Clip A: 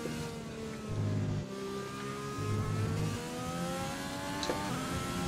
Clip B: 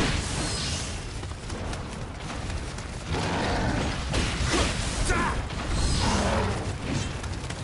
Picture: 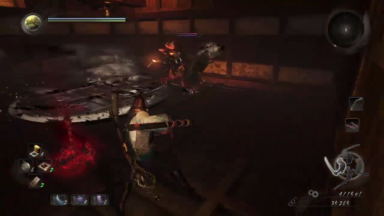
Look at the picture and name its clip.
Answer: B